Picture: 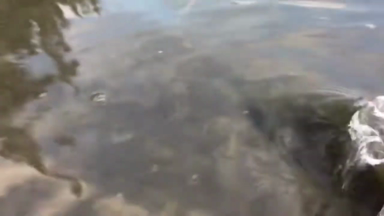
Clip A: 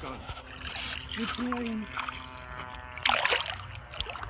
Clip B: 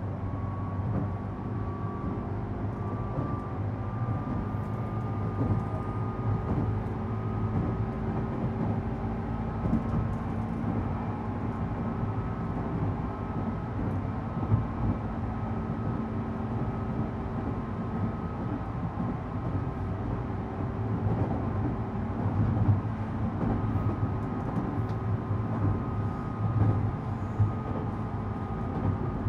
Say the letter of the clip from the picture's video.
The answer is A